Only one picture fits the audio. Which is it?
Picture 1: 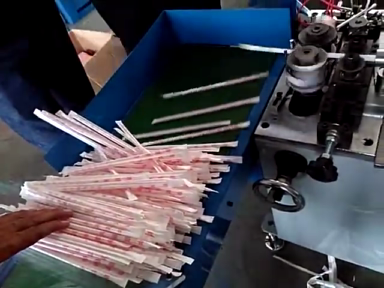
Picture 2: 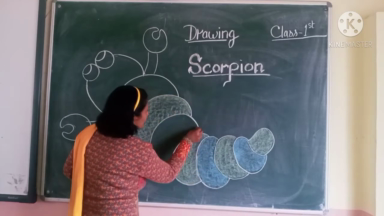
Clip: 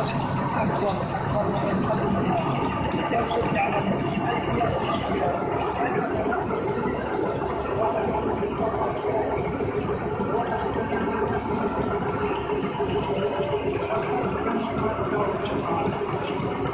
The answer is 1